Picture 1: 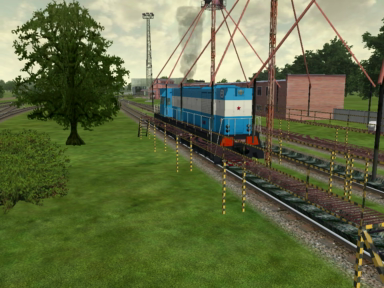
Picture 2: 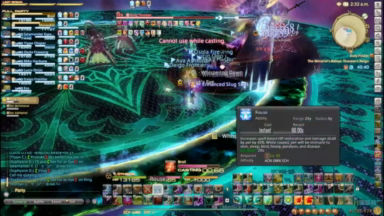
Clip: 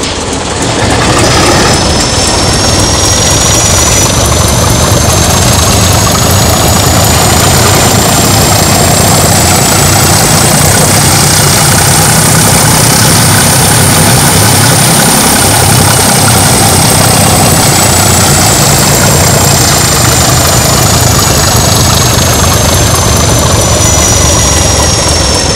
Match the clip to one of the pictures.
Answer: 1